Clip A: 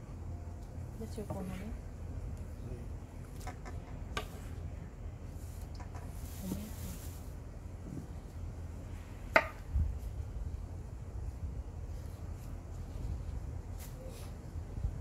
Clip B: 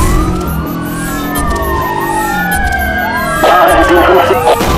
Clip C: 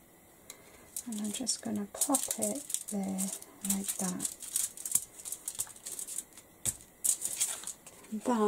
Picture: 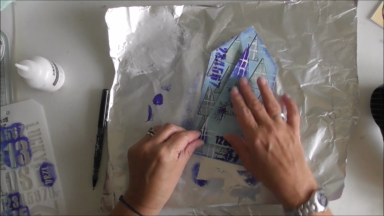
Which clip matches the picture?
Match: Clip C